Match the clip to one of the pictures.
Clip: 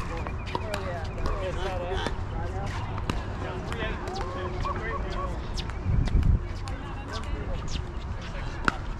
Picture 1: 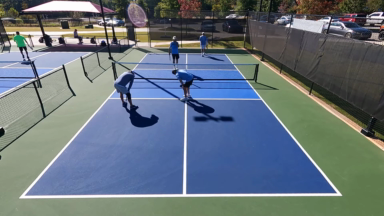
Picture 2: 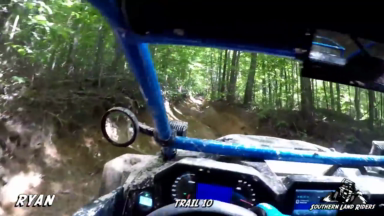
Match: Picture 1